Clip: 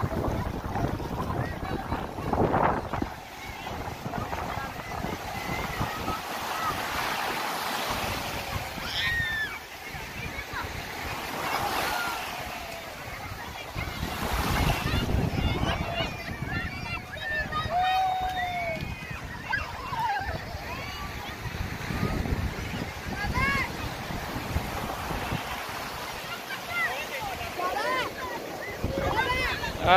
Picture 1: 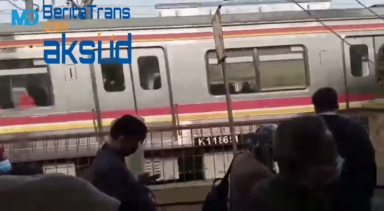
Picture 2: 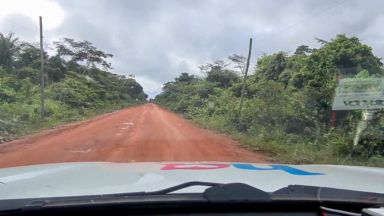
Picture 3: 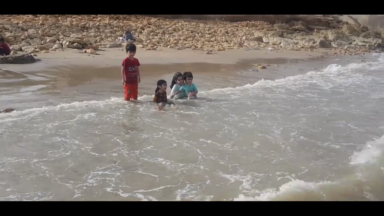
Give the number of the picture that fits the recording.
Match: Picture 3